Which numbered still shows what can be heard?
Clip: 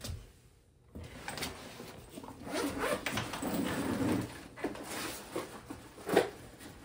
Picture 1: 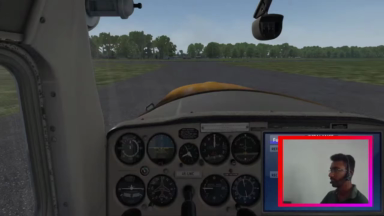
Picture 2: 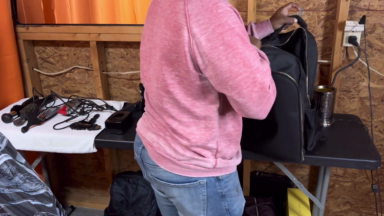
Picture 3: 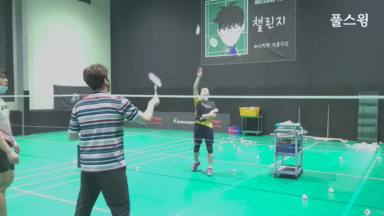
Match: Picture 2